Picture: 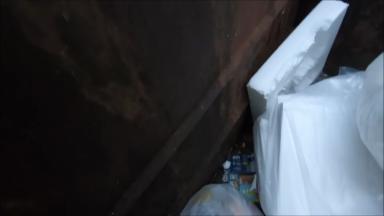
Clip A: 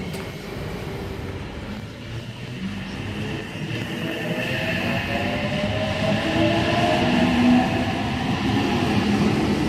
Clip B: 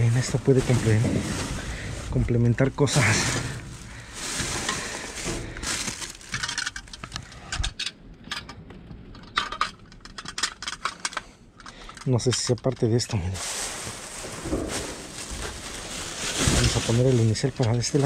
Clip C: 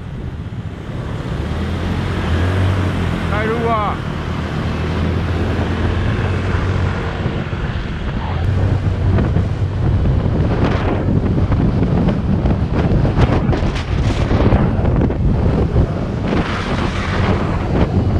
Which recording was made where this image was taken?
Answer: B